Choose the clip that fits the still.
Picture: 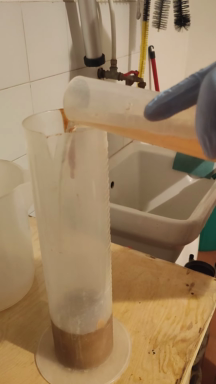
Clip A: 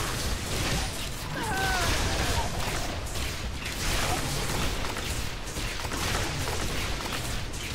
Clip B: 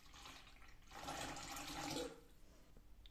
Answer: B